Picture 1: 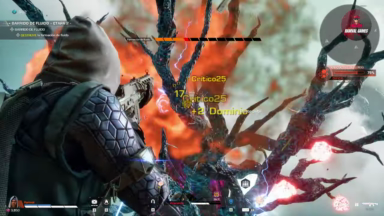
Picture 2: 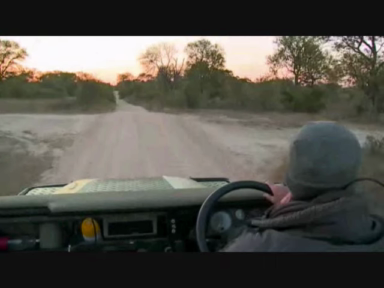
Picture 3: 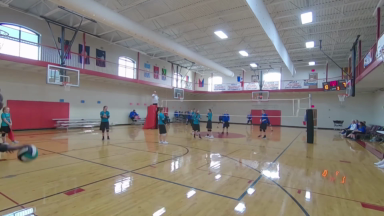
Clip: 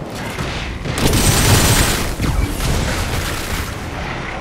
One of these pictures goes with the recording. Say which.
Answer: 1